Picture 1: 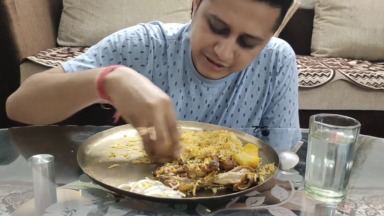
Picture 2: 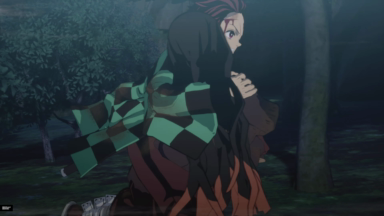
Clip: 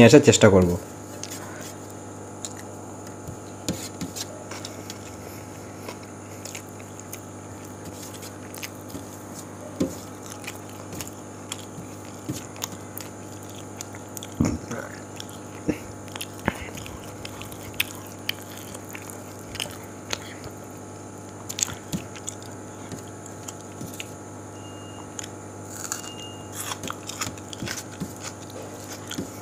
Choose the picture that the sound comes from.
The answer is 1